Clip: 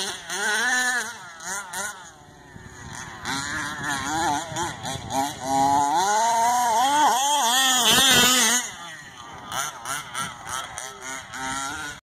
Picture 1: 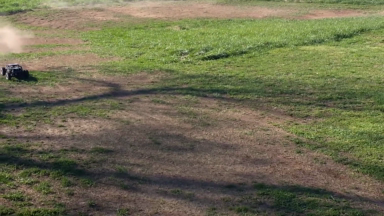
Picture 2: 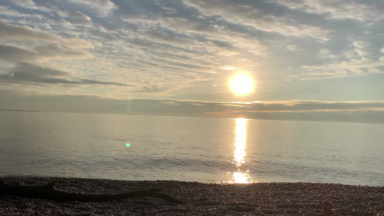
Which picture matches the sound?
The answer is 1